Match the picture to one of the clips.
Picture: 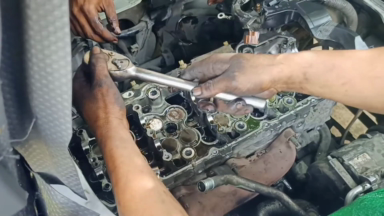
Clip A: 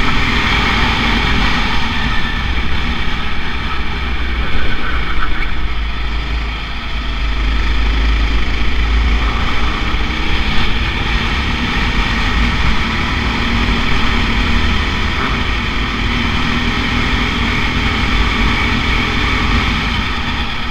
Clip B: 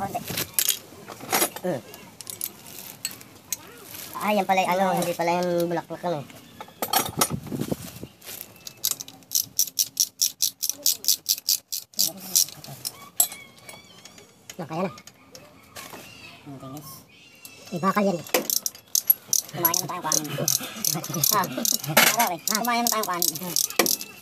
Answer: B